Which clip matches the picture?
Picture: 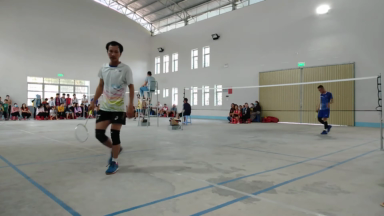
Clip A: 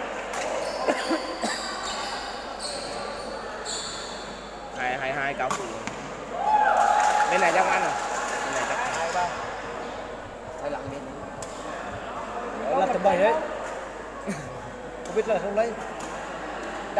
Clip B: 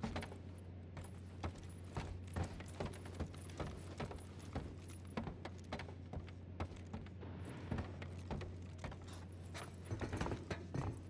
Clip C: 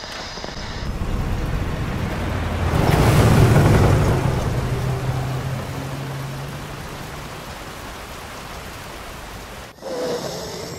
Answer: A